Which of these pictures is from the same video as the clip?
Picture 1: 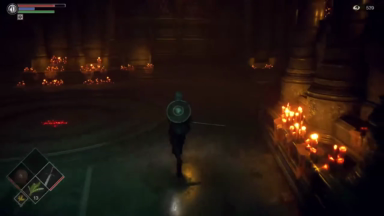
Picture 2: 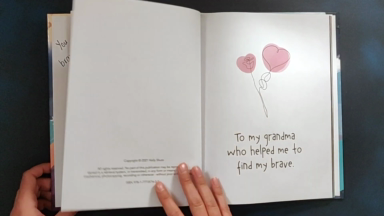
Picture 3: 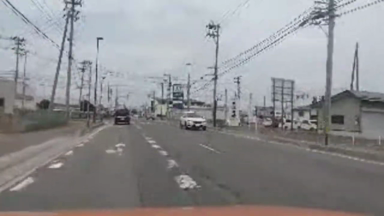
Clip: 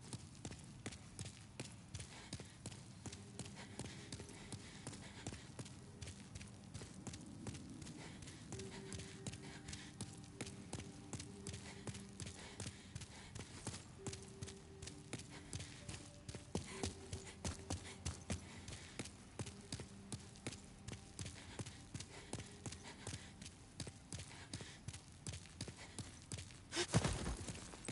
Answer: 1